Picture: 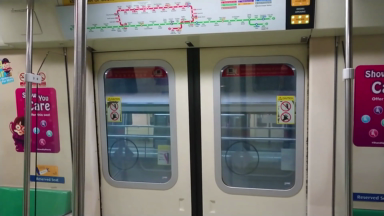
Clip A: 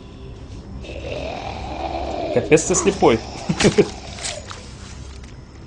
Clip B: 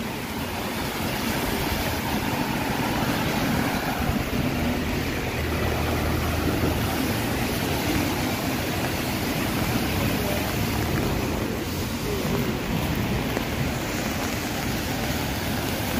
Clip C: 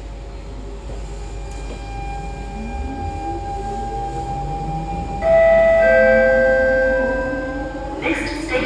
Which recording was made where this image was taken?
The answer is C